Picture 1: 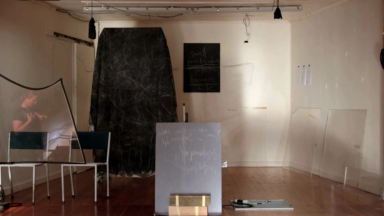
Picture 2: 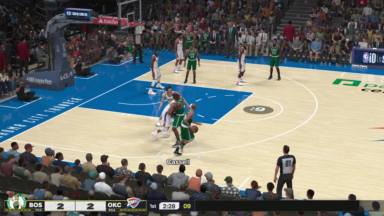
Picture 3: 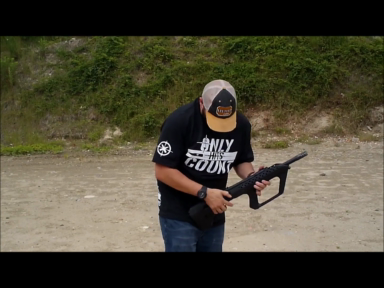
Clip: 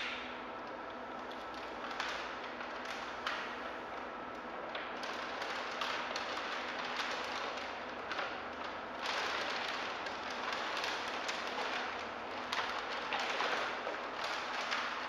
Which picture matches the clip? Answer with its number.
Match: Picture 1